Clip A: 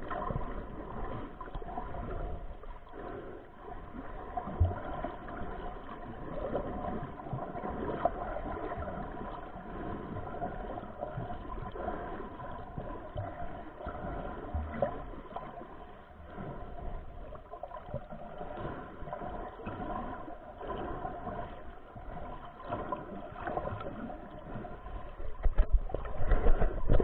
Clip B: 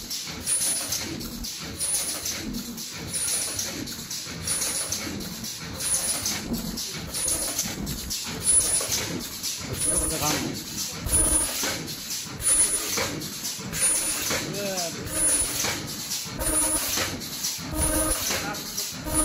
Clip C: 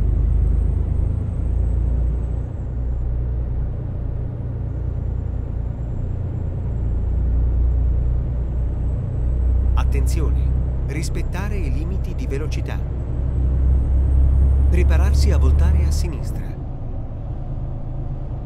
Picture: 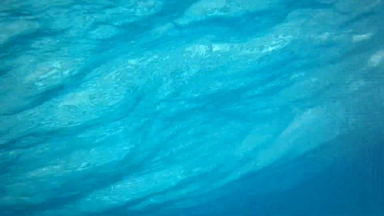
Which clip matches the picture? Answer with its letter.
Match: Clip A